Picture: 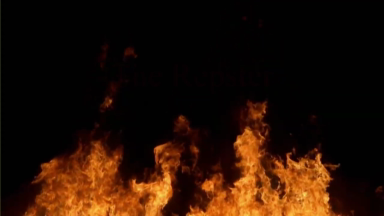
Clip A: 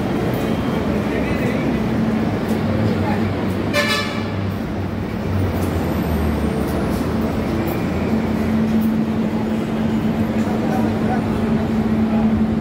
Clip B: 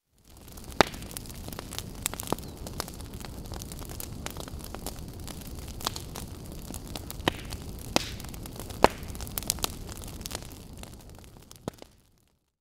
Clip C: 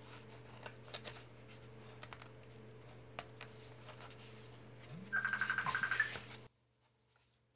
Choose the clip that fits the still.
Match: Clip B